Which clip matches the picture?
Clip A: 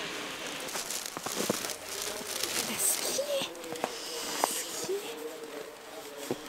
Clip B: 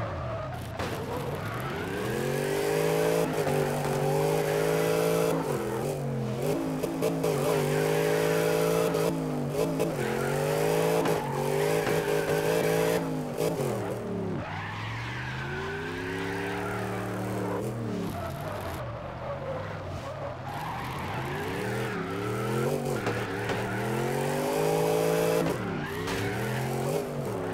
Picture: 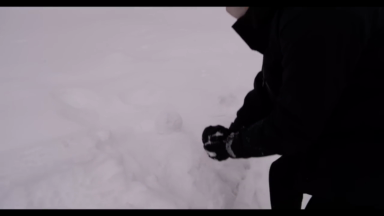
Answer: A